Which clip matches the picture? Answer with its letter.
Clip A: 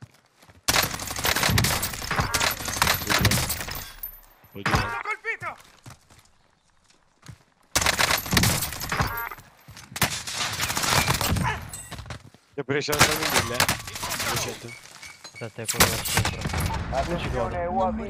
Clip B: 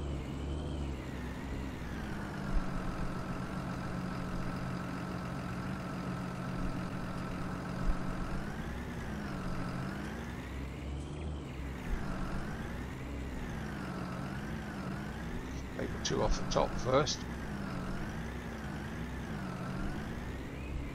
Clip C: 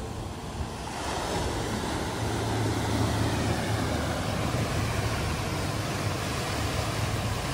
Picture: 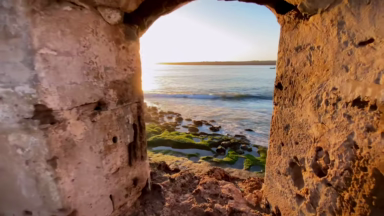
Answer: C